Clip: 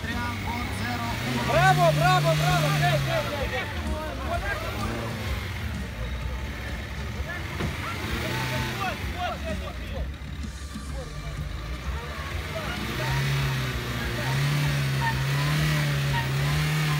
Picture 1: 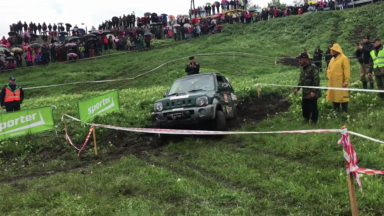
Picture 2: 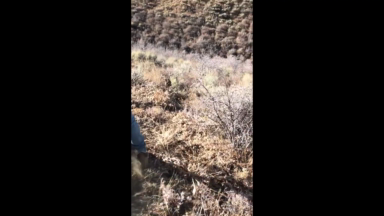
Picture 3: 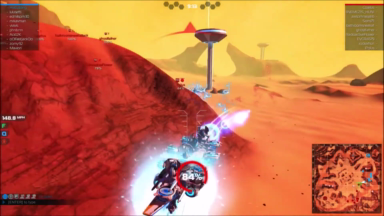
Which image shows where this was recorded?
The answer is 1